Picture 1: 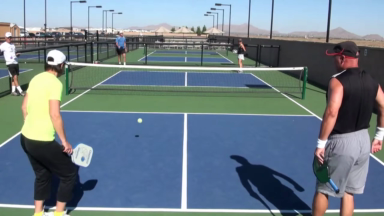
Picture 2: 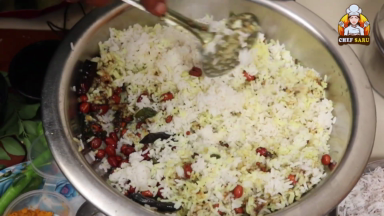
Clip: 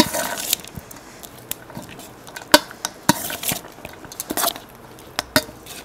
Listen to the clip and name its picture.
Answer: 2